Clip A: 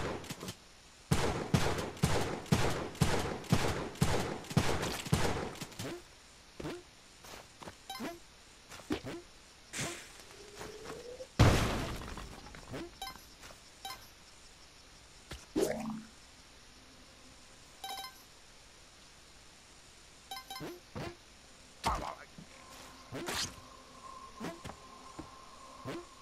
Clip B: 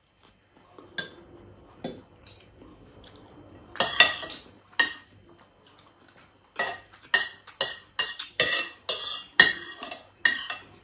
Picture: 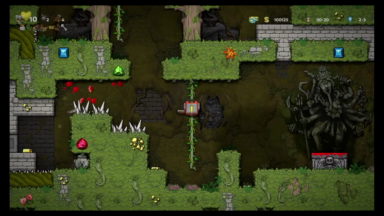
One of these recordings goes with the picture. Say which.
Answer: A